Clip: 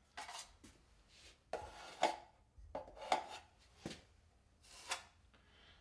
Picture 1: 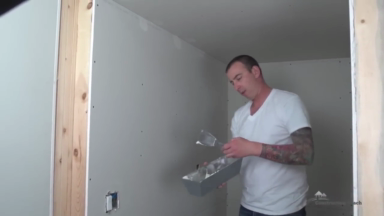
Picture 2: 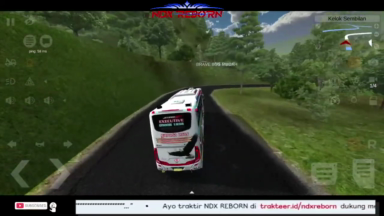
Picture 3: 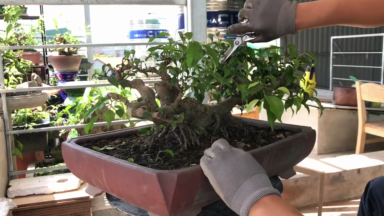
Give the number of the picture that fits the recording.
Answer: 1